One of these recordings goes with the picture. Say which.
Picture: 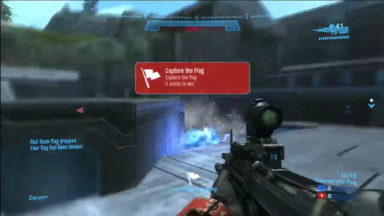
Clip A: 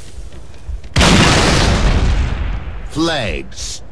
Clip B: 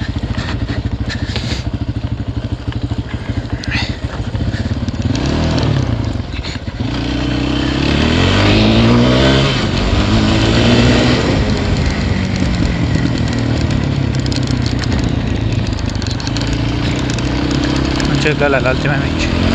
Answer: A